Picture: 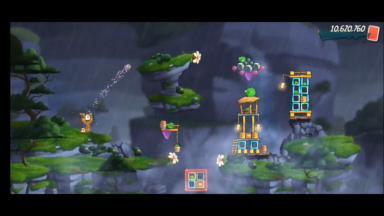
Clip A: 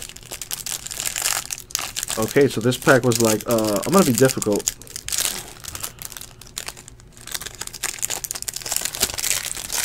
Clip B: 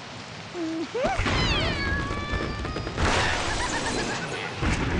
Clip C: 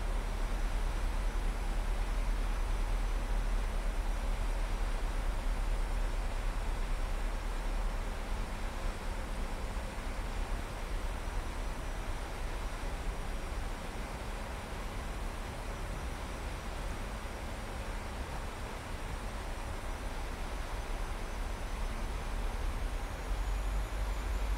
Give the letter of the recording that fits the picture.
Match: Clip B